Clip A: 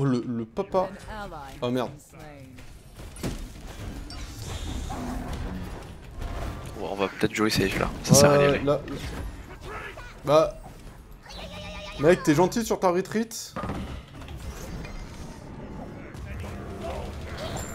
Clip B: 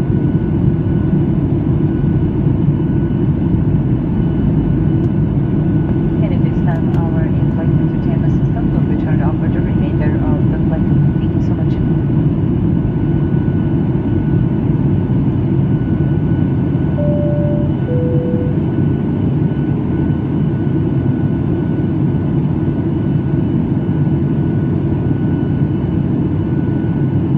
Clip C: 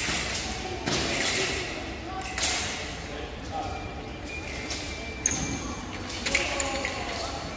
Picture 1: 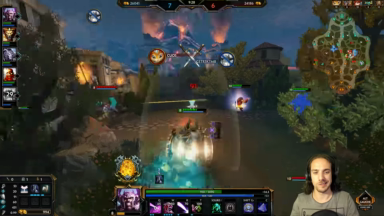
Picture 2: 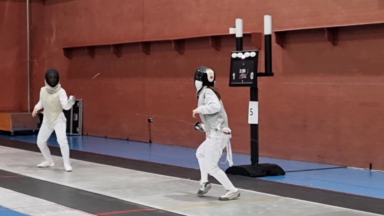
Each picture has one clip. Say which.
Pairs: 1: A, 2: C